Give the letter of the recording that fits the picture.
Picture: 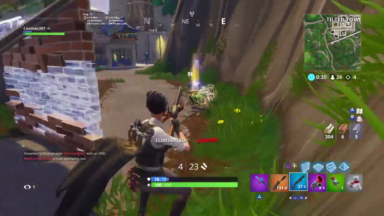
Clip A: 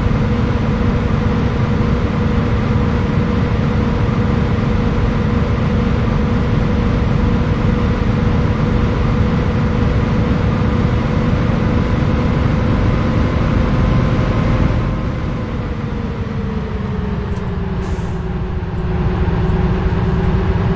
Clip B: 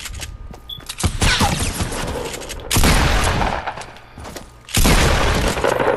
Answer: B